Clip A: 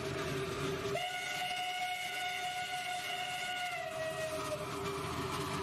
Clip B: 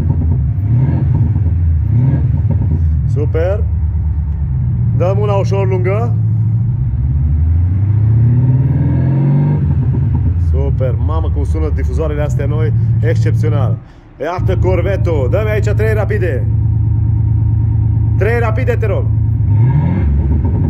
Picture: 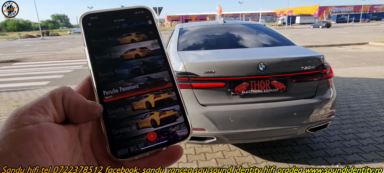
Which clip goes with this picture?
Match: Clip B